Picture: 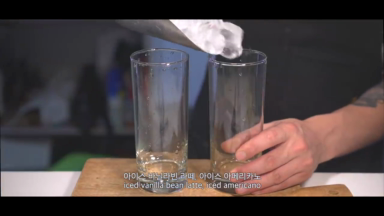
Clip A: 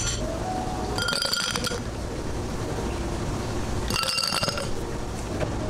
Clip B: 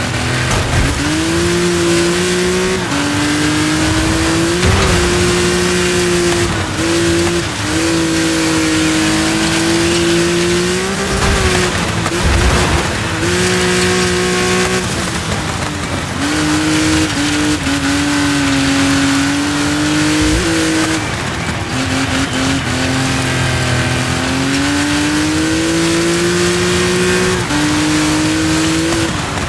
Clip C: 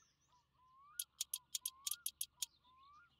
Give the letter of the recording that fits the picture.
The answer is A